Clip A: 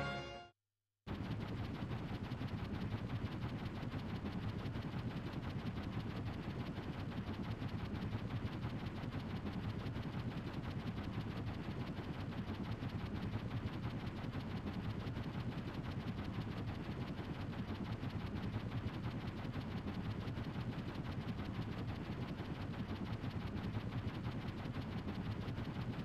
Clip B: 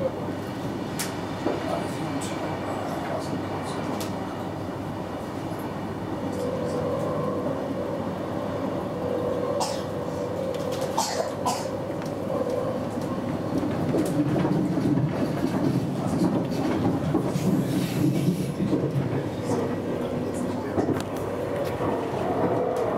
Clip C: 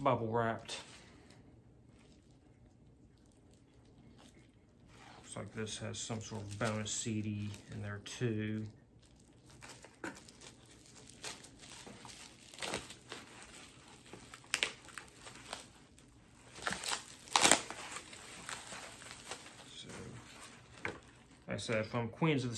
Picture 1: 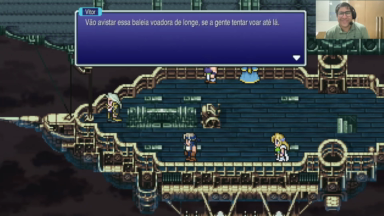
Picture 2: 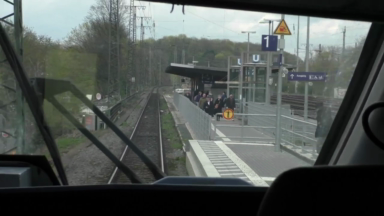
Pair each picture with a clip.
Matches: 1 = A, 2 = B